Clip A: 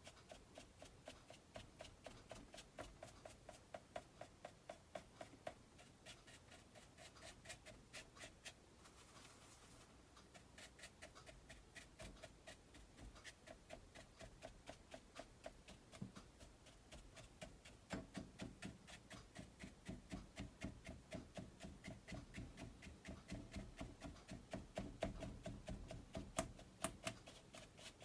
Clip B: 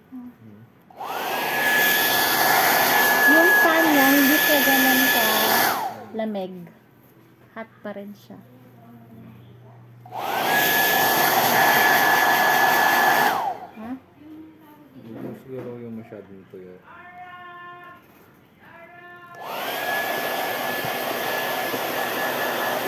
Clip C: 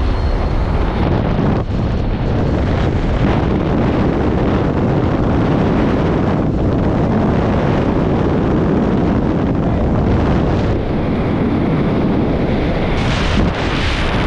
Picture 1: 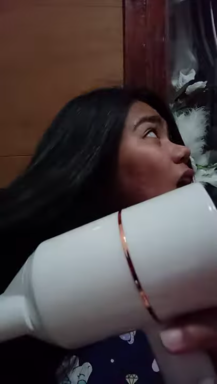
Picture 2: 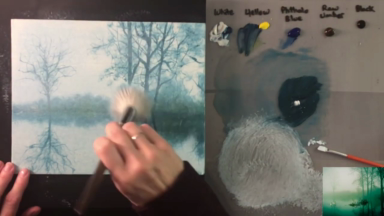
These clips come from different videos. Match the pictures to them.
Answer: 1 B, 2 A